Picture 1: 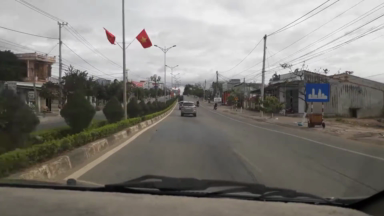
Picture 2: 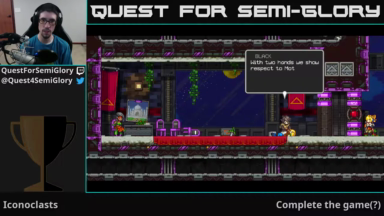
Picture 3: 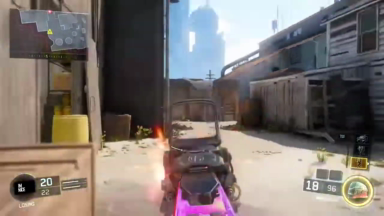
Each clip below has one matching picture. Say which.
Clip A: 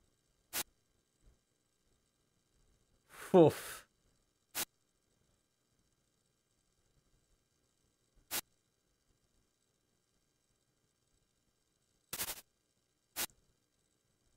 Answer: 2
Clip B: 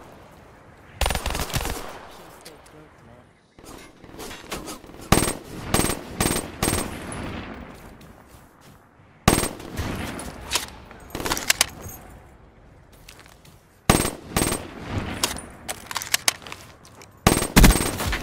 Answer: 3